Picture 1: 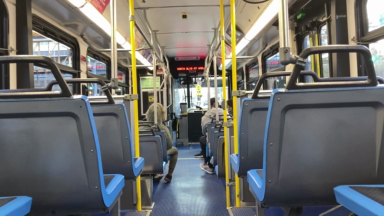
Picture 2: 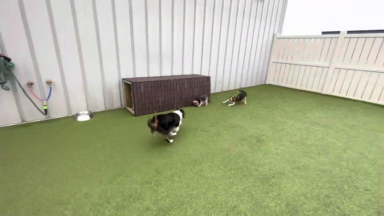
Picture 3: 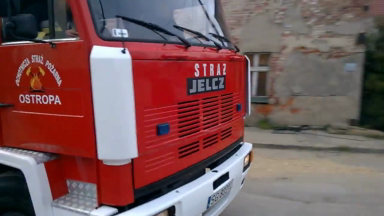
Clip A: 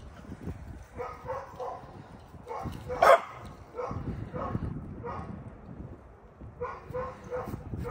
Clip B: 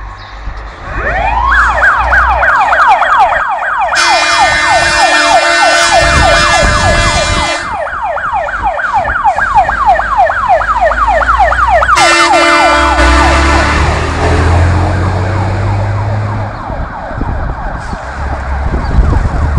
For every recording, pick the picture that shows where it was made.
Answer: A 2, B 3